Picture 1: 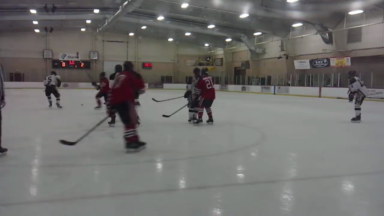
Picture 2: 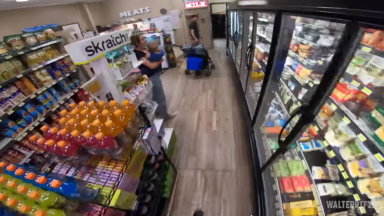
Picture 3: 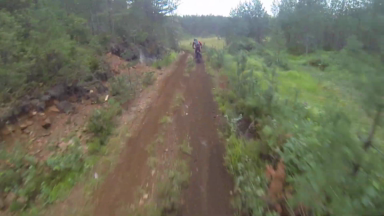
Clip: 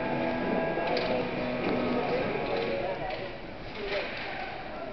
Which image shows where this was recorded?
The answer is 1